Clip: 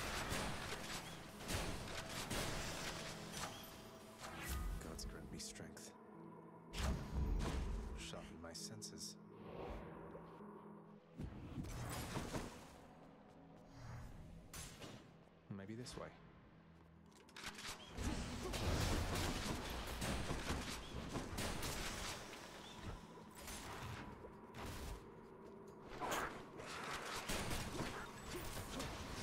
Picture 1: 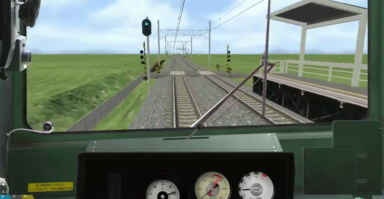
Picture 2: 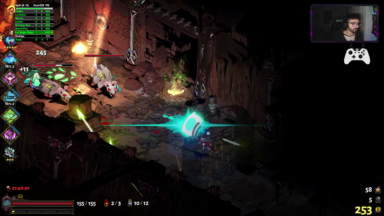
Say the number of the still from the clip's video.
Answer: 2